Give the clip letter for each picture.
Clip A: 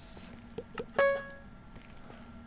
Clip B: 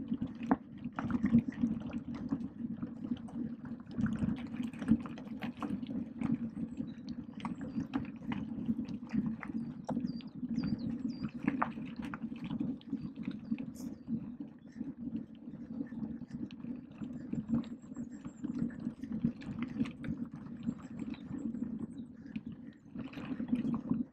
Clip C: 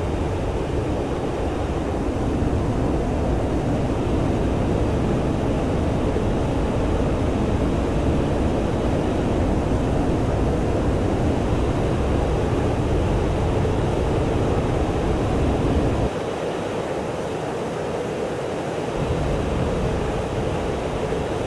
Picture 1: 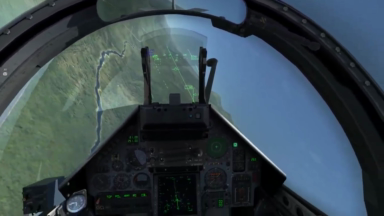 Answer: C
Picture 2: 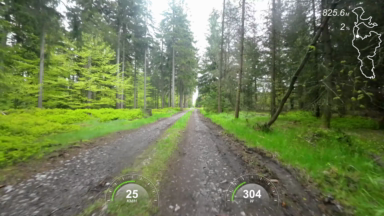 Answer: B